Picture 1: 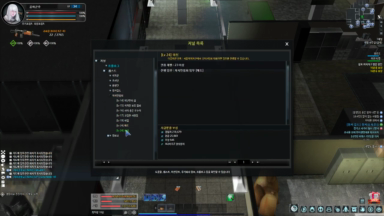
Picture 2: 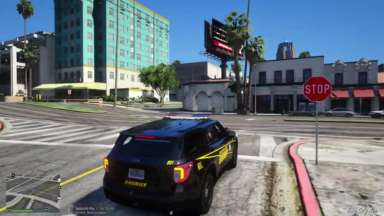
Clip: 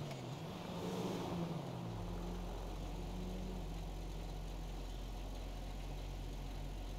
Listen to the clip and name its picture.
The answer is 2